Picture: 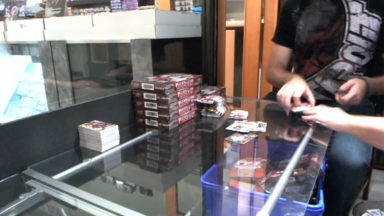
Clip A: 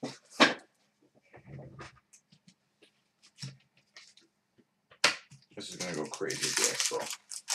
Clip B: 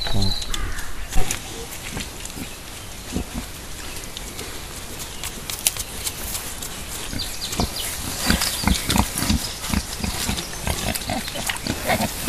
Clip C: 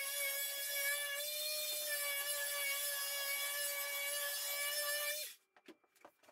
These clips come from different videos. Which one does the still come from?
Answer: A